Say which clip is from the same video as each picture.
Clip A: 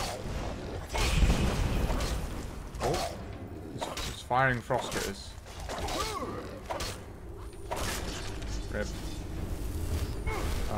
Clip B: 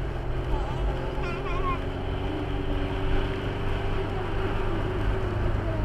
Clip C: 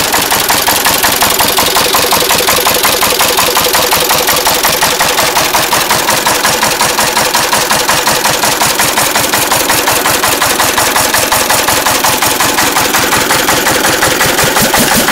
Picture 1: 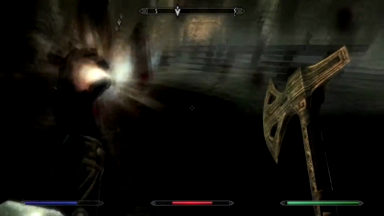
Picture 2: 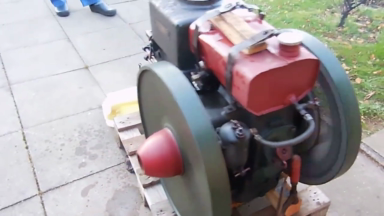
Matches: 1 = A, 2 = C